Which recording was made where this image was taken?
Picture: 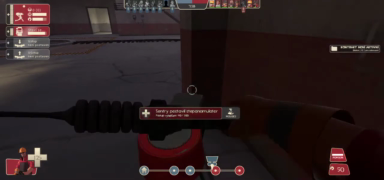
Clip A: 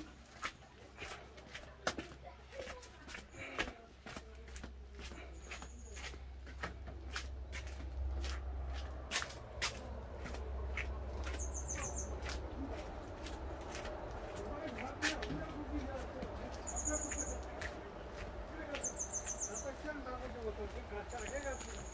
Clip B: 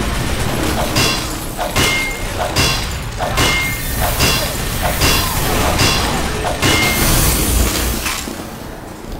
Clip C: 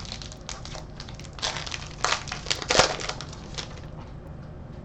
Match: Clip B